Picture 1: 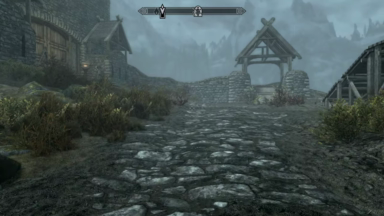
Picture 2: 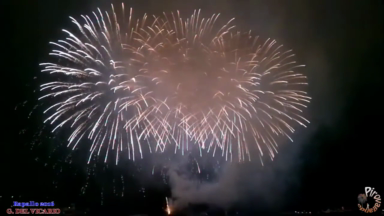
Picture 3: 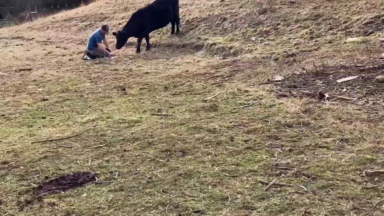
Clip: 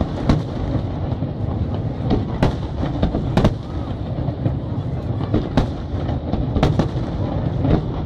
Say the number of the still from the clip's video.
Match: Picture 2